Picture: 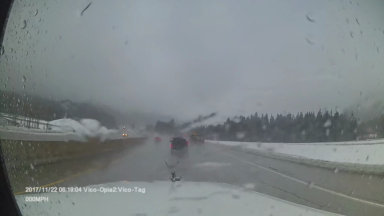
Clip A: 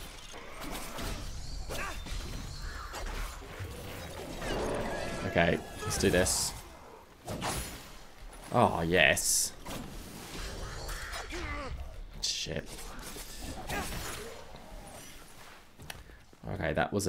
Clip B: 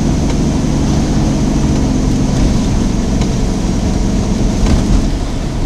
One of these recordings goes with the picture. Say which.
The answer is B